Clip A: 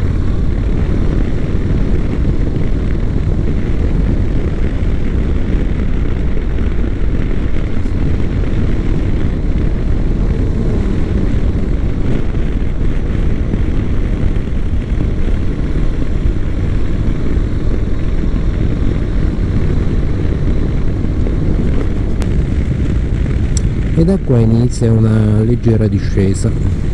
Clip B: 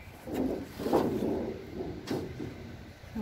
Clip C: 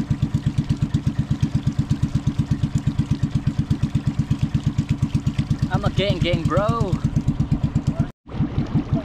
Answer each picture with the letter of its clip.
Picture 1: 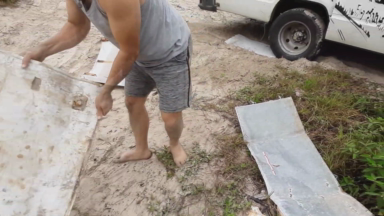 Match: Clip B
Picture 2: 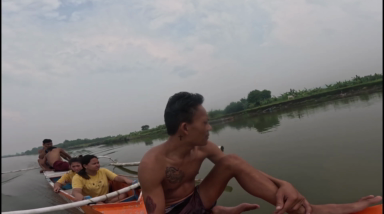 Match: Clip C